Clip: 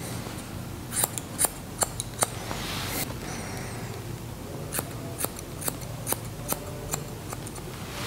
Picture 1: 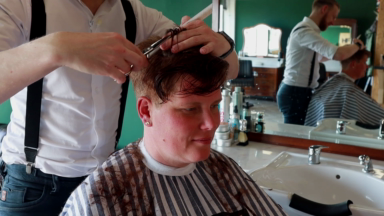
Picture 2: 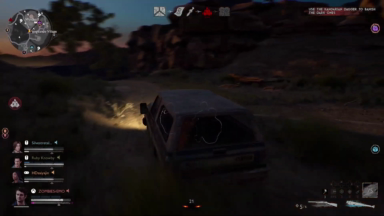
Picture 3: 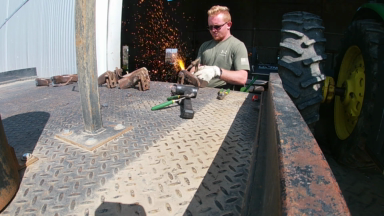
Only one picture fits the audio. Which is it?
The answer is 1